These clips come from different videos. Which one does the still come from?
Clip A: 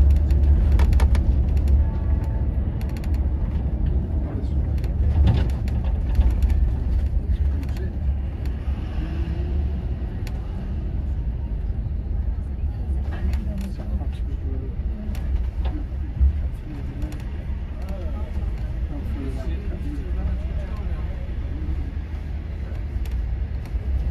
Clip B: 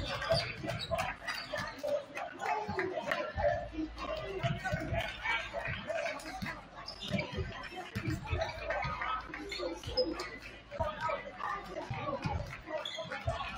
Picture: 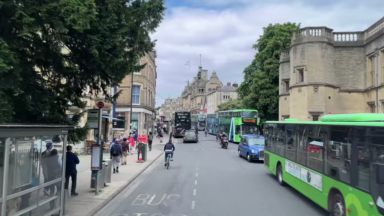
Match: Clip A